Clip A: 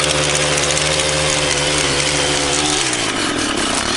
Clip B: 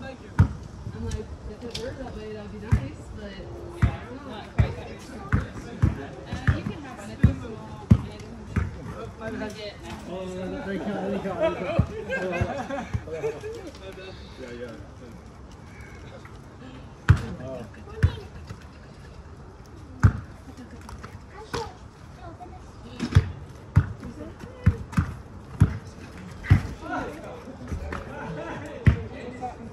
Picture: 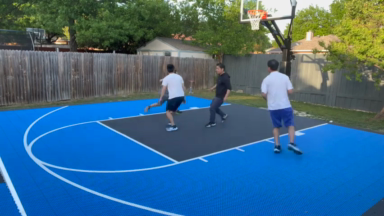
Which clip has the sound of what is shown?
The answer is B